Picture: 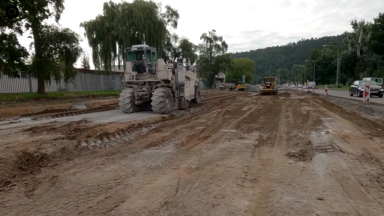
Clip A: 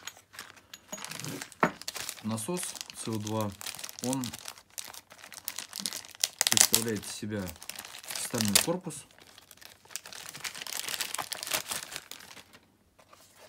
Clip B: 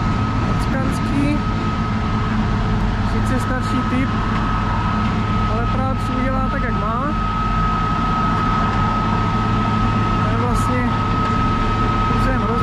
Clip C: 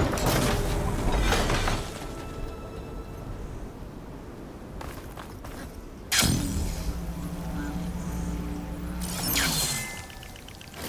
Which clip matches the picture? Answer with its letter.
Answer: B